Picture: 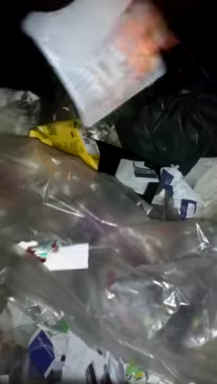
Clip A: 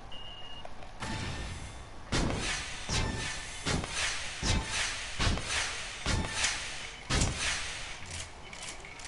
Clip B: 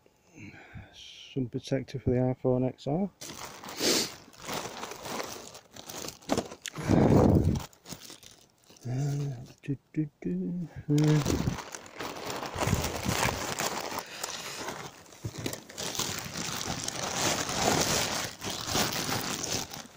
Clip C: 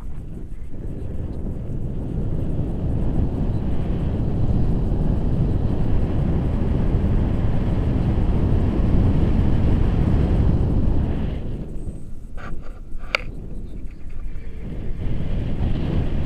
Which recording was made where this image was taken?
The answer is B